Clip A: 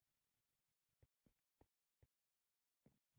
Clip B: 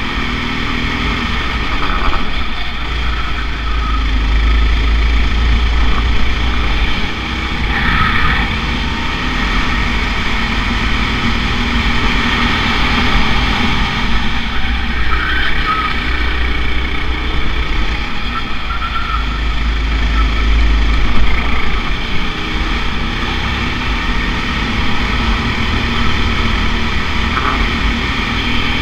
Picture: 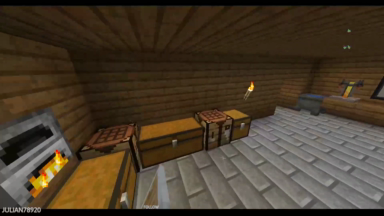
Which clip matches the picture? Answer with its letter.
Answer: A